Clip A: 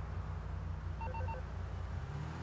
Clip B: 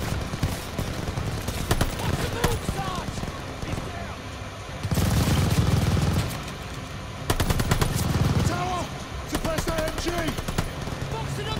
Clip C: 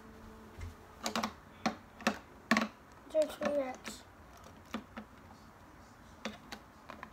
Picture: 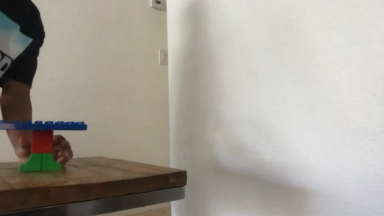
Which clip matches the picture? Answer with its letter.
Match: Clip C